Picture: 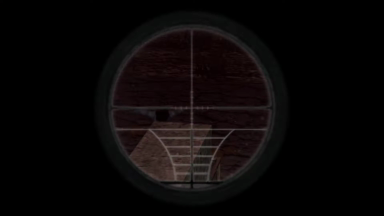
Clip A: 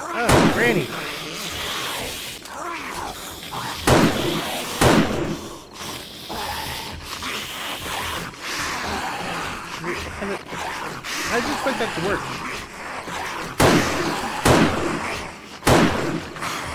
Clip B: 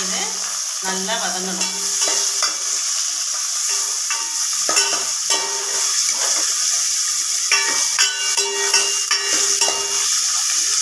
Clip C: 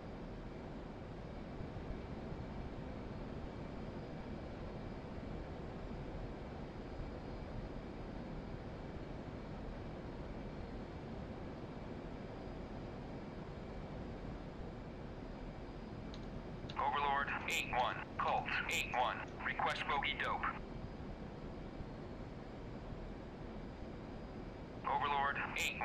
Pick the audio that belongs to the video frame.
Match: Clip A